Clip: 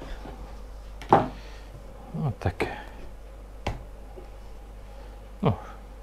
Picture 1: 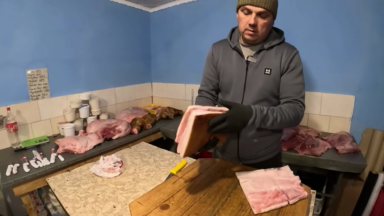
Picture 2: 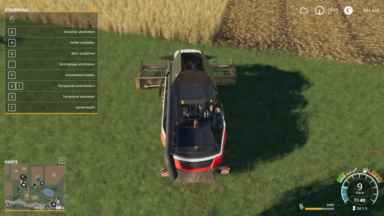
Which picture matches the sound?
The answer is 1